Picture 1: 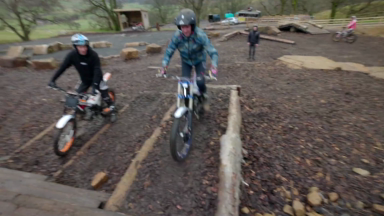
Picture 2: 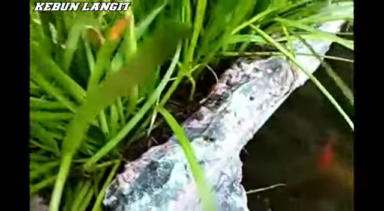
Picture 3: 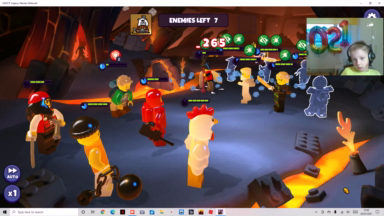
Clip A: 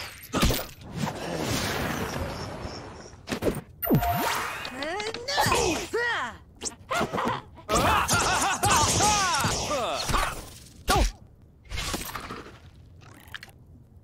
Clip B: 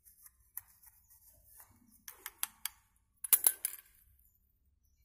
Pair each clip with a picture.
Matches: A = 3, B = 2